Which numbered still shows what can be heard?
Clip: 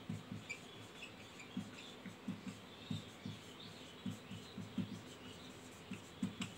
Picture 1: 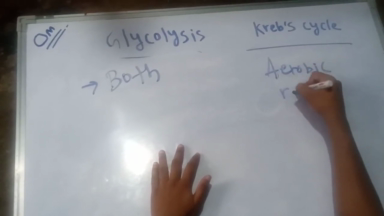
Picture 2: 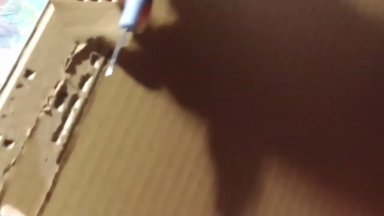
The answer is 1